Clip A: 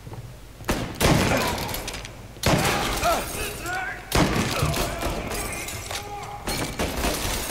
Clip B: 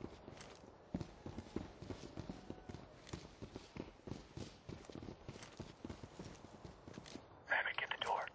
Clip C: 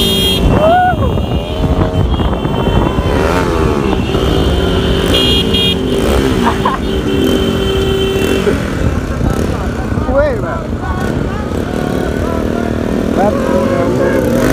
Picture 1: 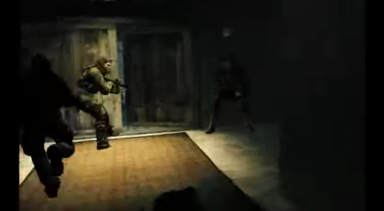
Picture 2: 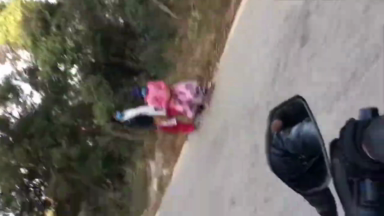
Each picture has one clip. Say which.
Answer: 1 B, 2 C